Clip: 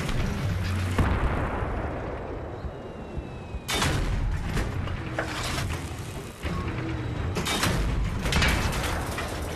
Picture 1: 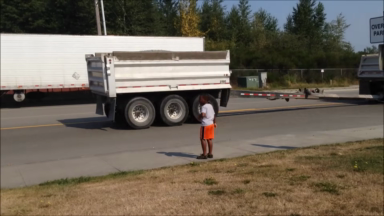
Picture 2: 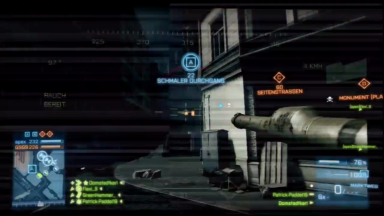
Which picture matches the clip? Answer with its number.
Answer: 2